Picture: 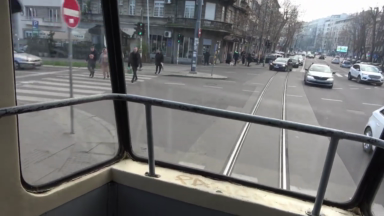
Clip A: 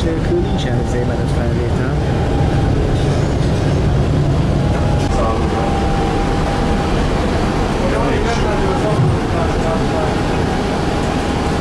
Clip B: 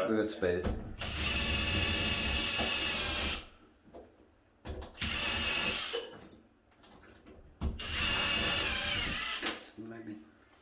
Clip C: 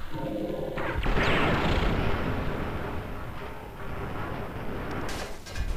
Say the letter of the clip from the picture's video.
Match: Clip A